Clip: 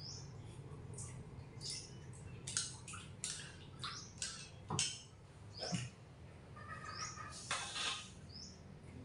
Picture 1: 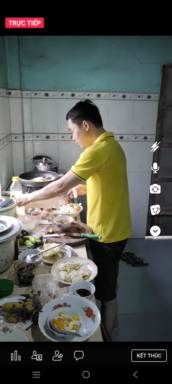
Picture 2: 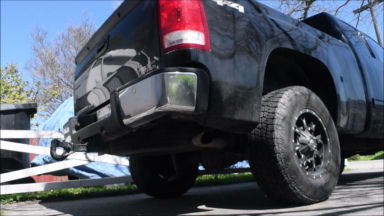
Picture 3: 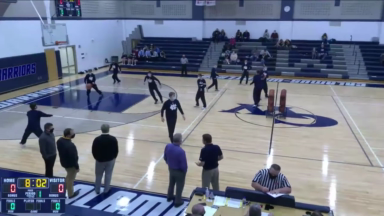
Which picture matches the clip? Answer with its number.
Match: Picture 1